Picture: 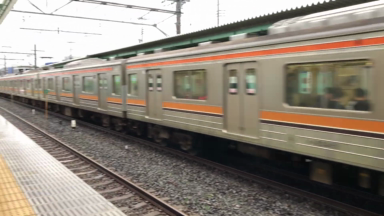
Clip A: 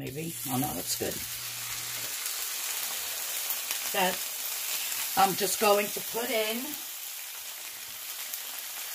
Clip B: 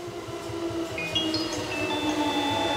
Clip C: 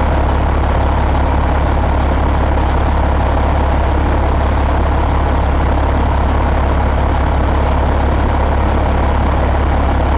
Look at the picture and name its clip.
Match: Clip B